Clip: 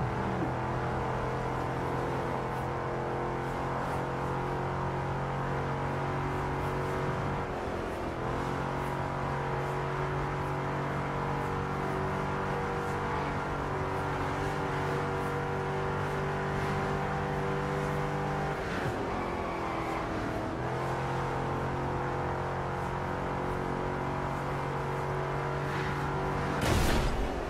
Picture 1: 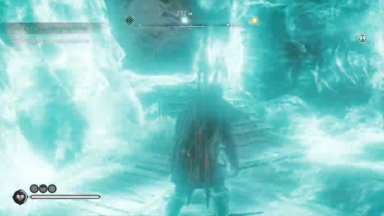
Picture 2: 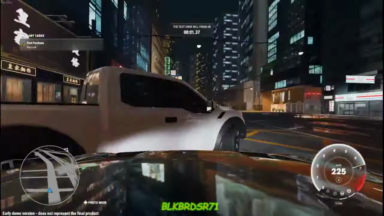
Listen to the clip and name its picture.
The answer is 2